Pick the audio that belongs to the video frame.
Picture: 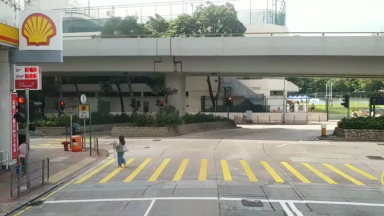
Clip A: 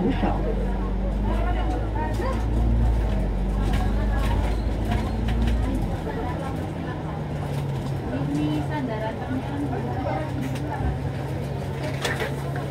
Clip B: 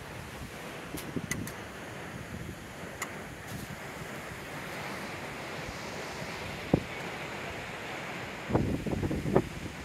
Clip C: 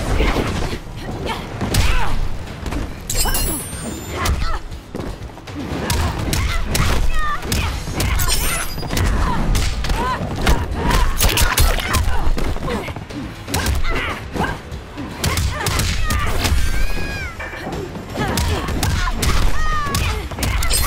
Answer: A